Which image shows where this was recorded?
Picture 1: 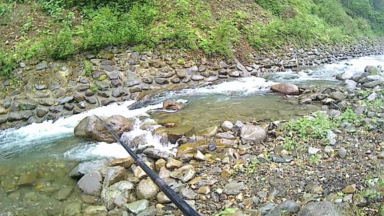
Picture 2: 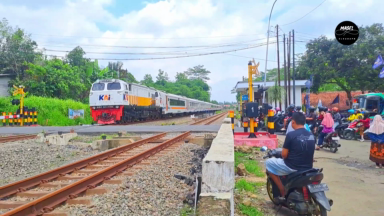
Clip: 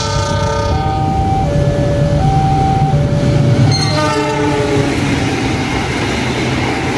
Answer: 2